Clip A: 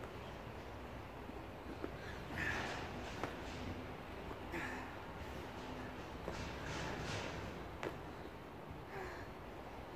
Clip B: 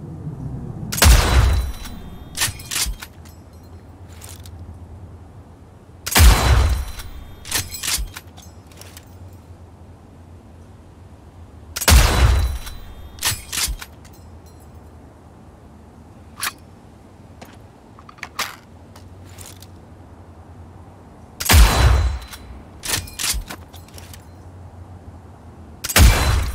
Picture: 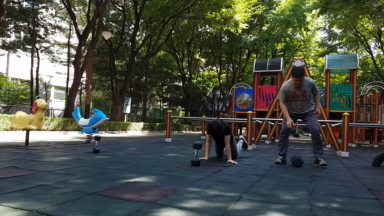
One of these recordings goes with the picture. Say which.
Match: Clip A